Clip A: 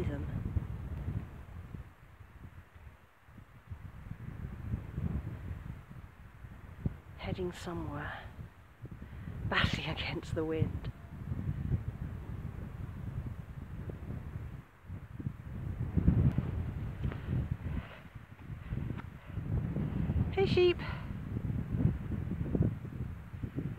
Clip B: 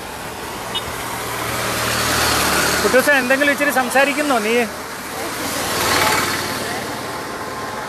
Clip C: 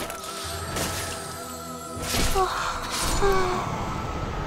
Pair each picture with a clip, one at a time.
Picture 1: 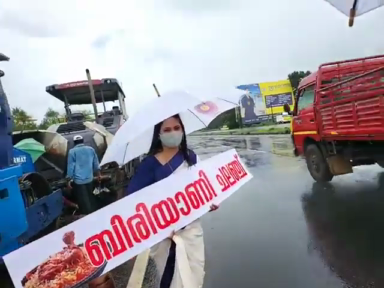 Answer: B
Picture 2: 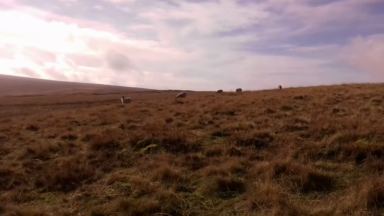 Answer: A